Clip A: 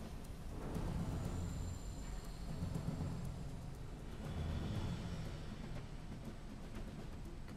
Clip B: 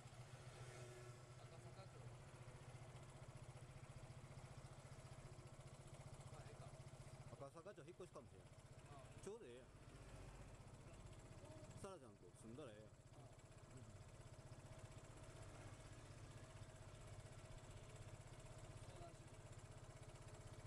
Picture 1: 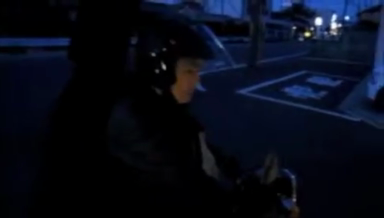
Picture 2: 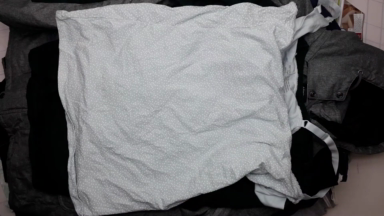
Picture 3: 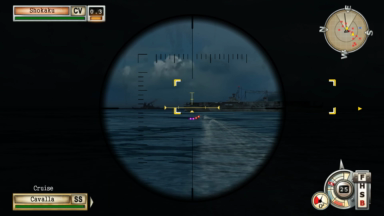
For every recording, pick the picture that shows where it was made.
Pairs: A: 3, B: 1